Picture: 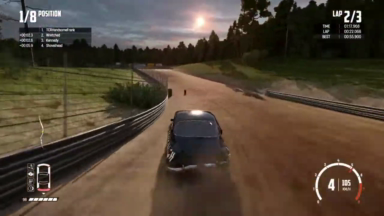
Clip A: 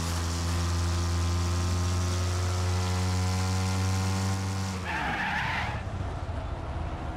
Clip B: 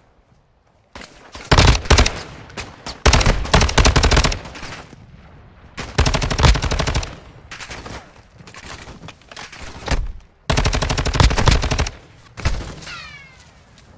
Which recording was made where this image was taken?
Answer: A